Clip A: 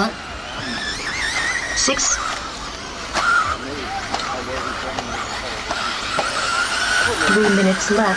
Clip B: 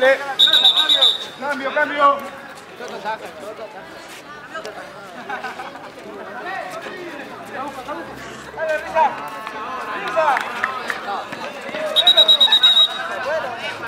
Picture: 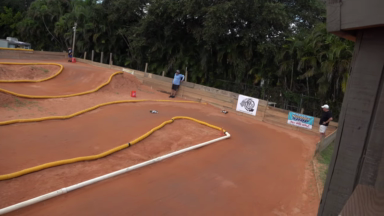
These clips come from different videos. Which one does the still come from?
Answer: A